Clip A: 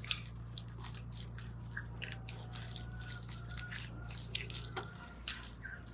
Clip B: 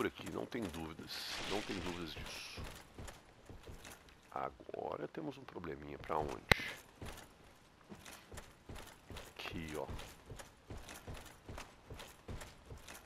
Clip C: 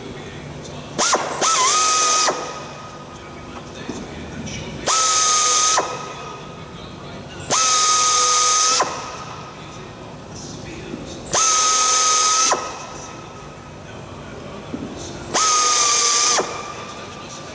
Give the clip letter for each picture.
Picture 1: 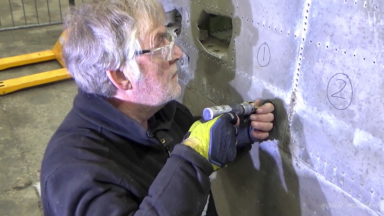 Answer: C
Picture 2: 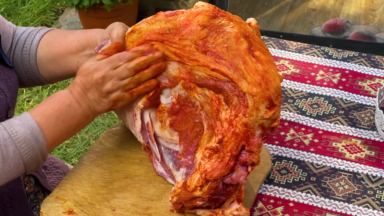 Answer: A